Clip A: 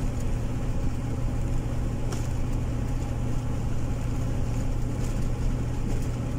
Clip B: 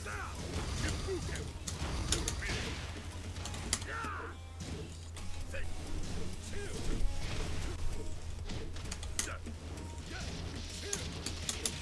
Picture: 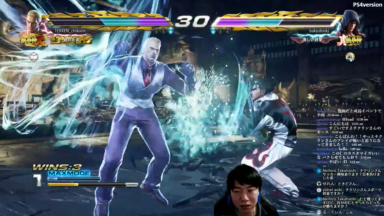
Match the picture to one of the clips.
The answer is B